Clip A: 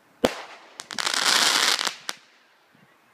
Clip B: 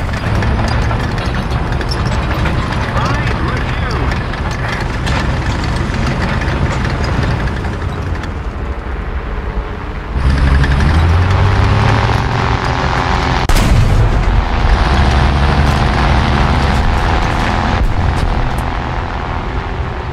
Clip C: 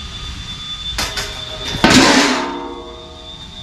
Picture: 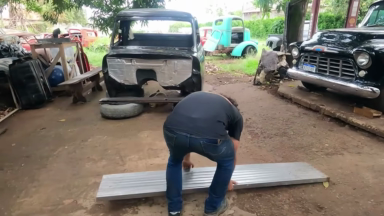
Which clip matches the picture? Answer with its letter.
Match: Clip C